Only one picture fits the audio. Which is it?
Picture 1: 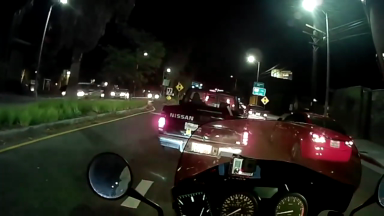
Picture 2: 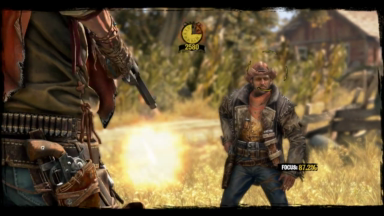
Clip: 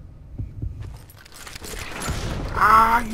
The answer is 2